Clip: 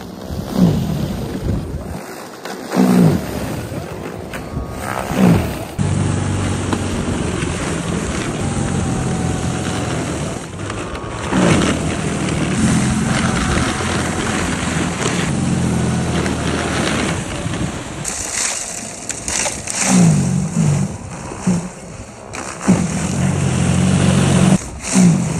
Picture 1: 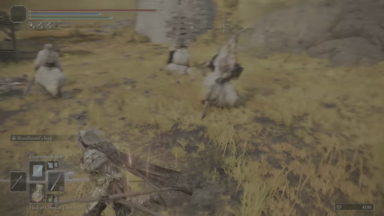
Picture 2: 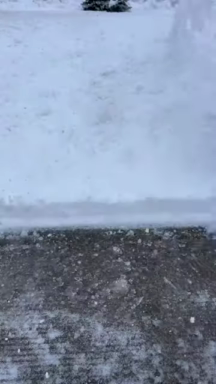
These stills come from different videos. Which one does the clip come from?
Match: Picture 2